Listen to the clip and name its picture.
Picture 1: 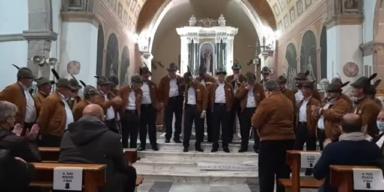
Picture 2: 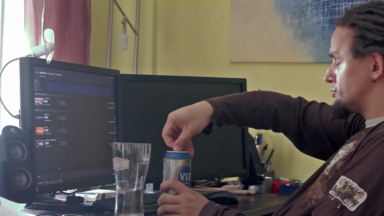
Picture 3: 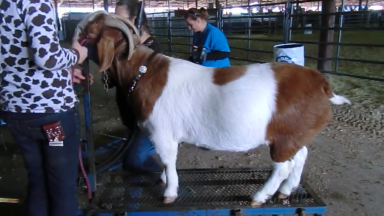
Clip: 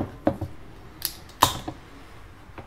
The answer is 2